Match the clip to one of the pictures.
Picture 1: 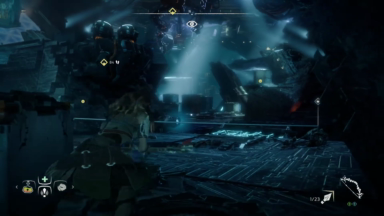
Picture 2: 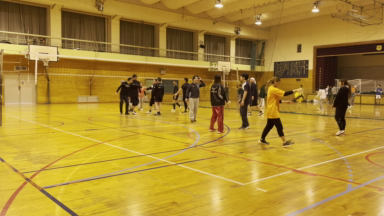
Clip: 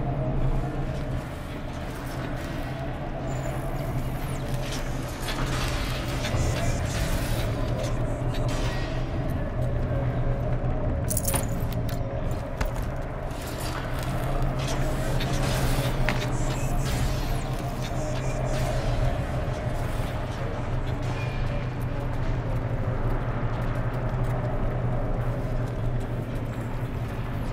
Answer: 1